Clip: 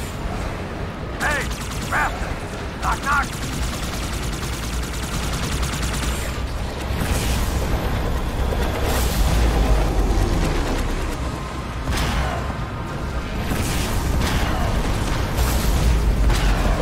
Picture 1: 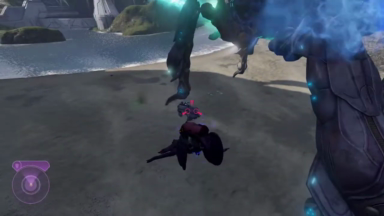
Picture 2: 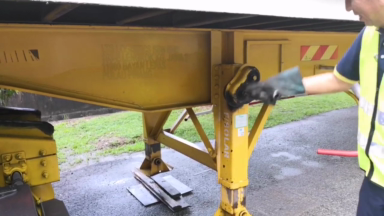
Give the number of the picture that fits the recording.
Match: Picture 1